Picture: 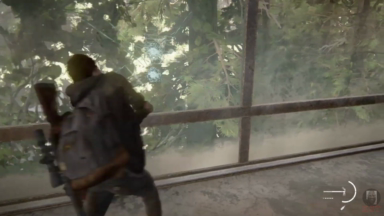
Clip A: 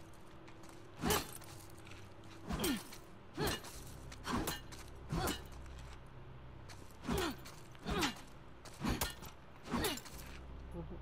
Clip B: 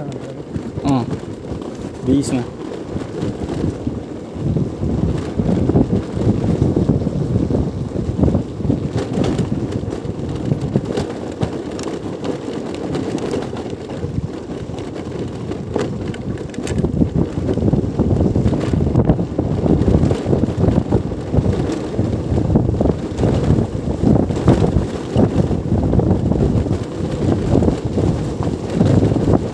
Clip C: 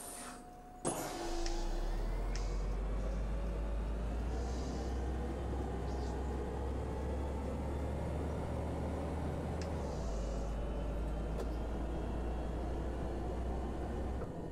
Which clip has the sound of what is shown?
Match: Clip A